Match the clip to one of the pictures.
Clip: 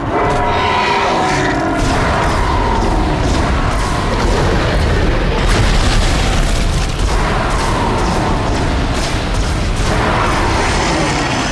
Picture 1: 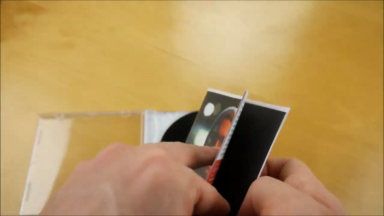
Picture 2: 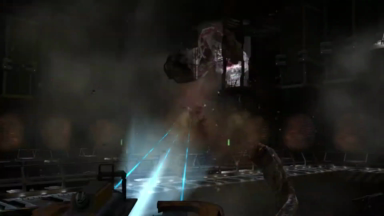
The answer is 2